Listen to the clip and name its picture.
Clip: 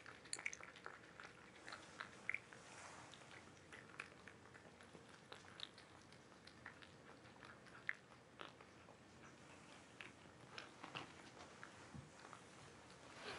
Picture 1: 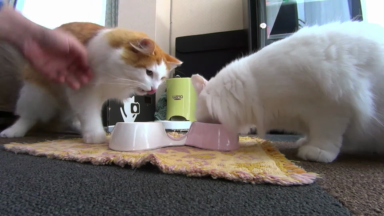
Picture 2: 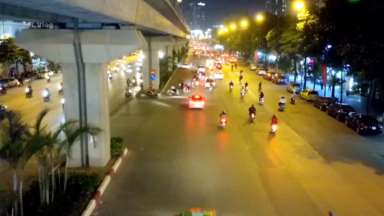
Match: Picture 1